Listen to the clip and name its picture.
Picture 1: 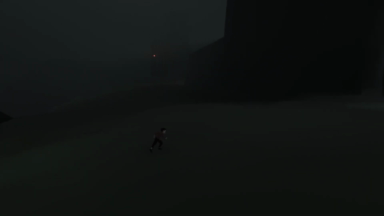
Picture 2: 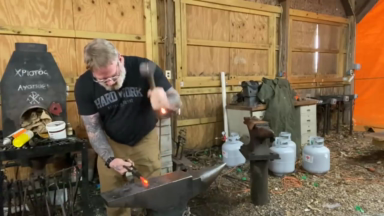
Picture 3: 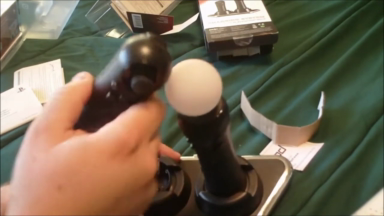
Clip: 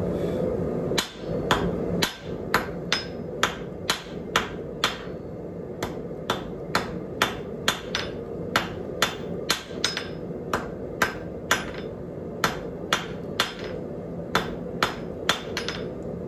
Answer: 2